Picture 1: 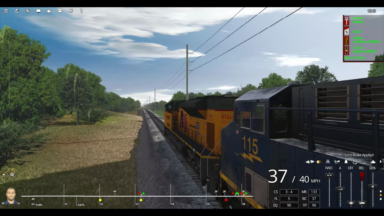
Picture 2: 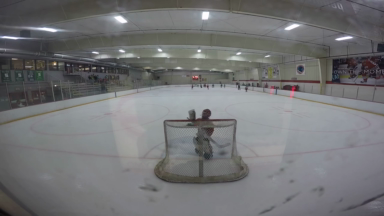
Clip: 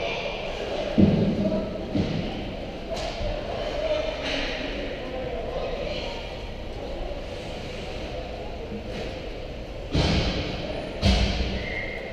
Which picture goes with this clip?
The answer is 2